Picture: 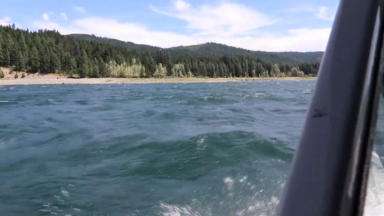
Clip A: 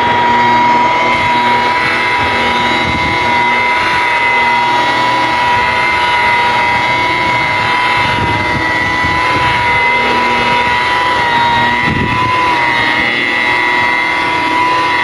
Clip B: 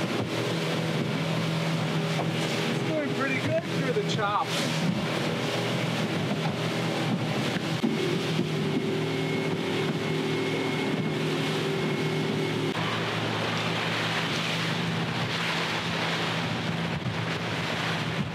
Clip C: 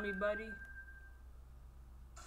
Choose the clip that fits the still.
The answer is B